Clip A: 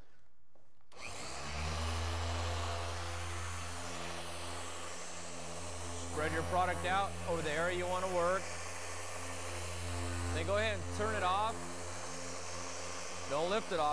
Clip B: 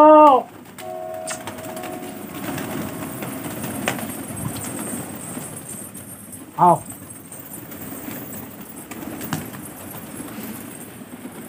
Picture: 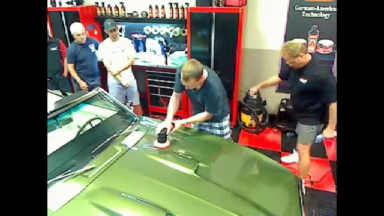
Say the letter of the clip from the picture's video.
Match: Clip A